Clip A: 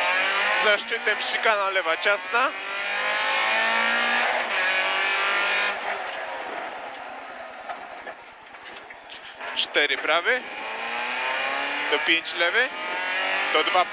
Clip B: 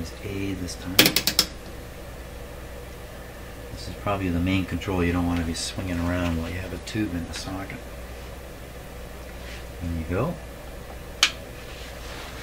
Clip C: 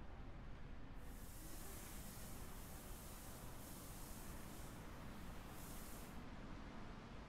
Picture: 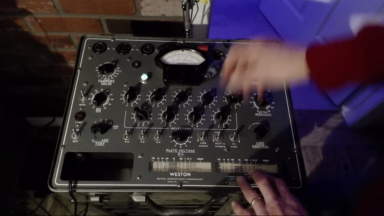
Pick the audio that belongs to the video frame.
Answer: B